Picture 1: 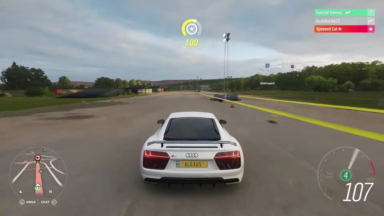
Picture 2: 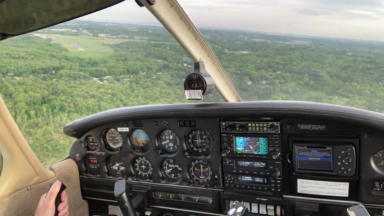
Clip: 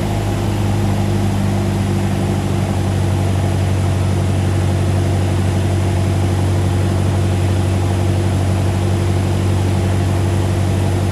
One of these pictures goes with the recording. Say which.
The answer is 2